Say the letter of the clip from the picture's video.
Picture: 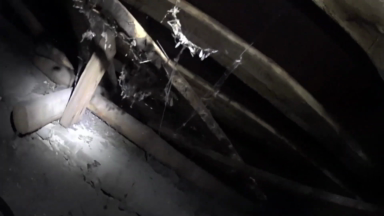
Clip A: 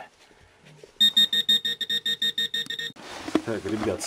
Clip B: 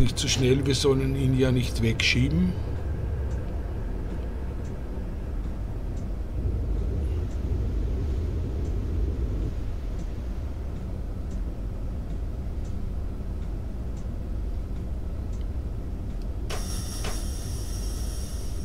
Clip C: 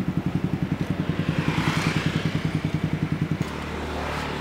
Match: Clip A